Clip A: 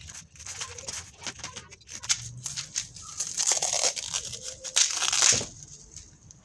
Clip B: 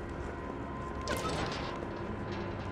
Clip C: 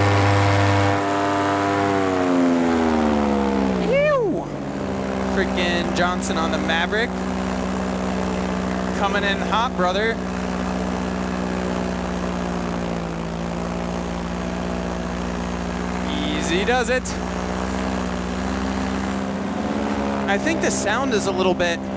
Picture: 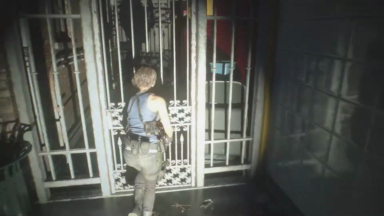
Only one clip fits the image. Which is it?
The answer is B